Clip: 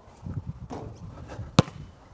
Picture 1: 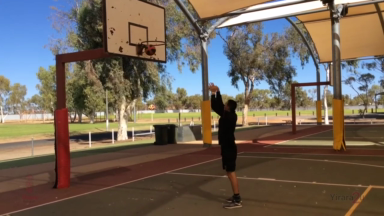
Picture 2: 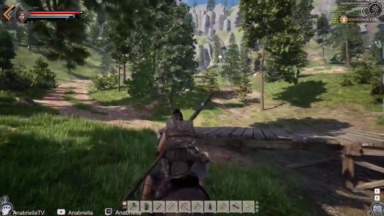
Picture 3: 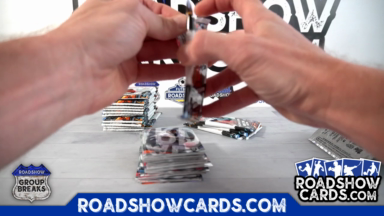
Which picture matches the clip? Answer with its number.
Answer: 1